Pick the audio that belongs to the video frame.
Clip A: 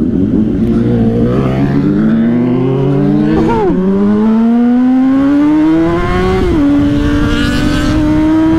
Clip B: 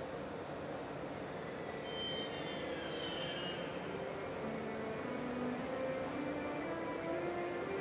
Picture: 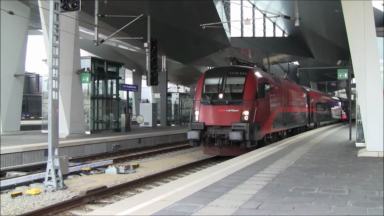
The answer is B